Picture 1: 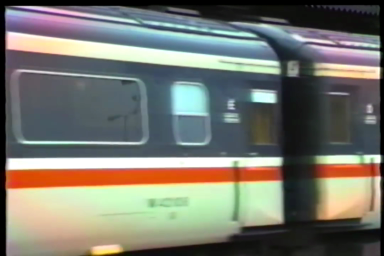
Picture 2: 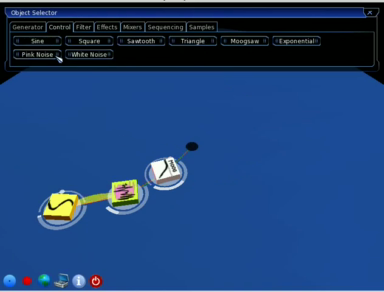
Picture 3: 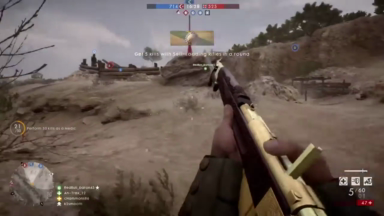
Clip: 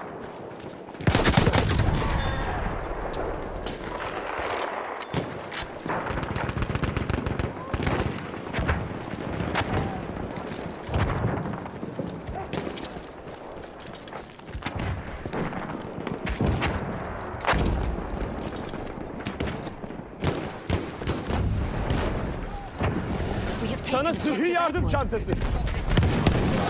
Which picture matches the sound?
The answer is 3